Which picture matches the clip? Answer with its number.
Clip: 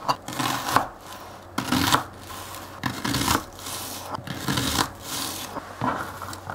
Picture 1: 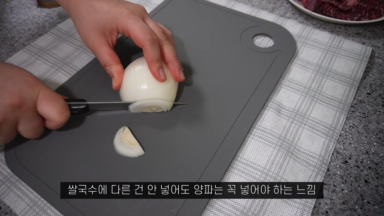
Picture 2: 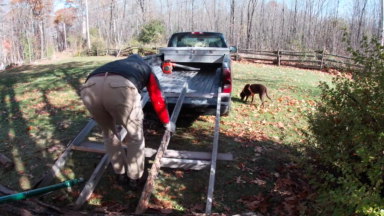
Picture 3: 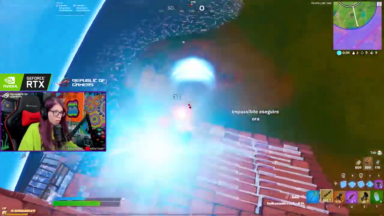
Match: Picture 1